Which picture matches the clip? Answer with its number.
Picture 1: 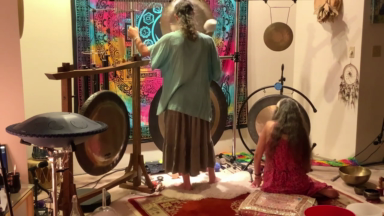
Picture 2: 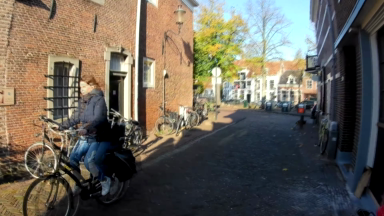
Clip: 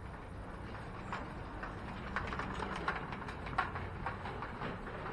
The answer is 2